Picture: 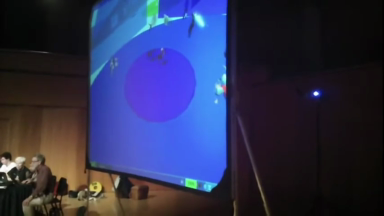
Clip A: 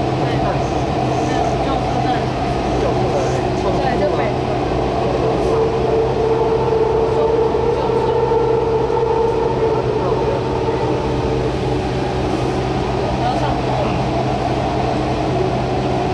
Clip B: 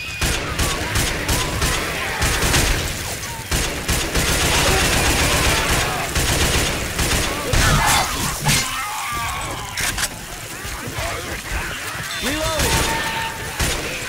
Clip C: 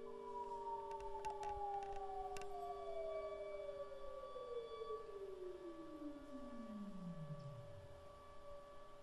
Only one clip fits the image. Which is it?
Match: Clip C